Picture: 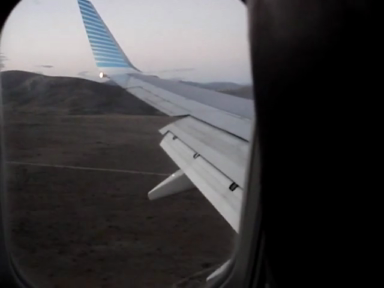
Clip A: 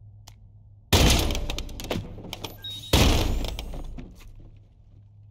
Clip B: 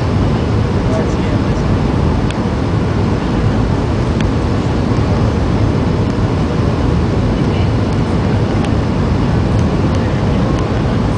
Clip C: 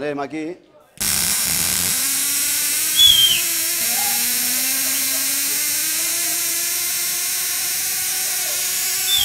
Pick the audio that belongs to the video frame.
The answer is B